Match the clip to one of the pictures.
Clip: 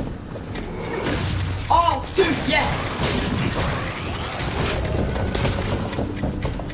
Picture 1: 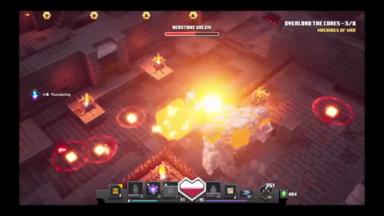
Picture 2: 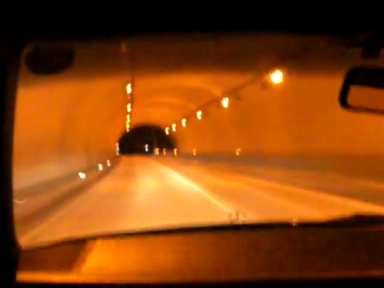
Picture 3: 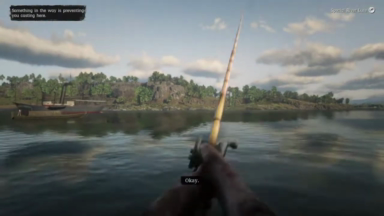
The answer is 1